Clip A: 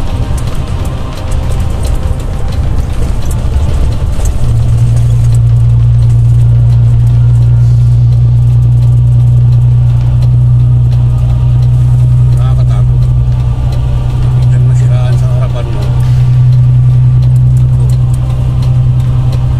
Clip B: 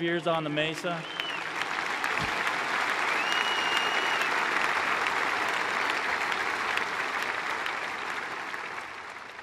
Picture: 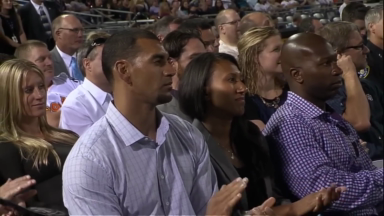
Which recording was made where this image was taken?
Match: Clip B